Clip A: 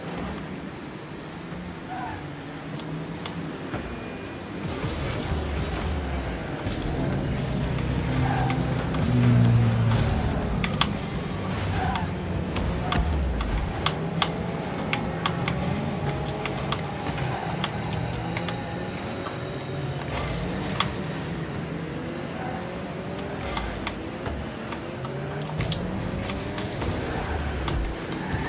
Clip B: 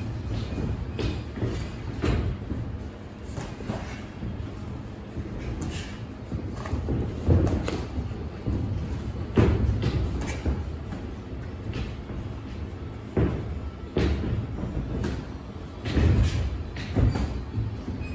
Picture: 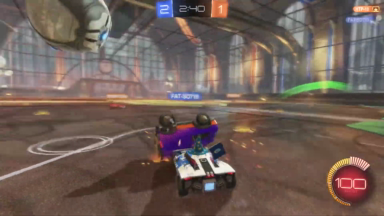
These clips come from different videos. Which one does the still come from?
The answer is A